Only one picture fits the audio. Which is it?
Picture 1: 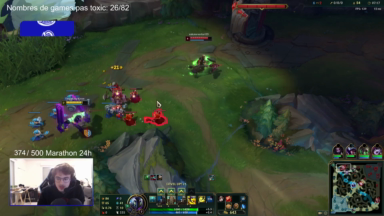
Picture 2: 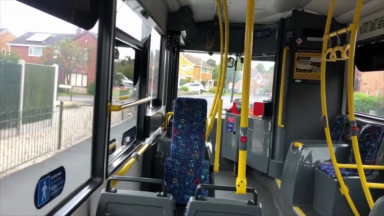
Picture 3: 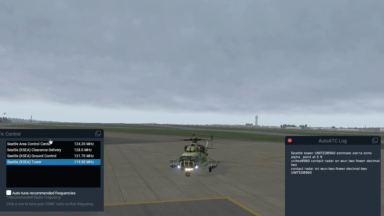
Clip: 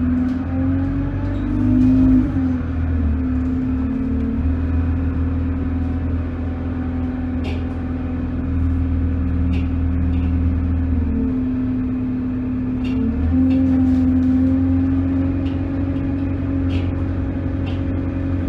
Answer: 2